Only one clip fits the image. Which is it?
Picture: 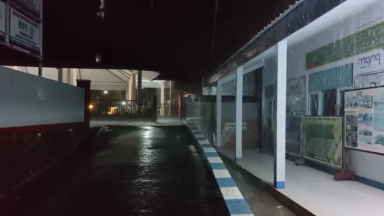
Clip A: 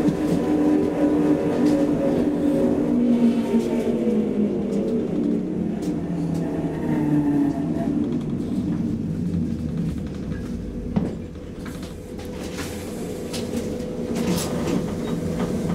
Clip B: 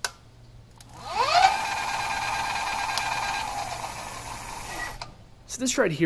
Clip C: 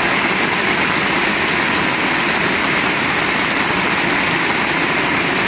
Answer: C